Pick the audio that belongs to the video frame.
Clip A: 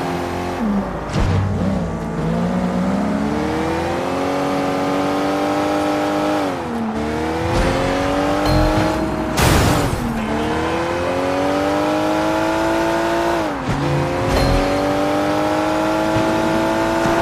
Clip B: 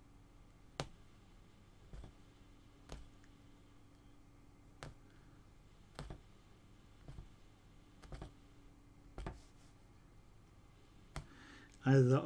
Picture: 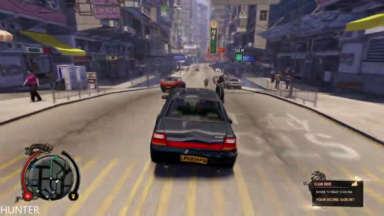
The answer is A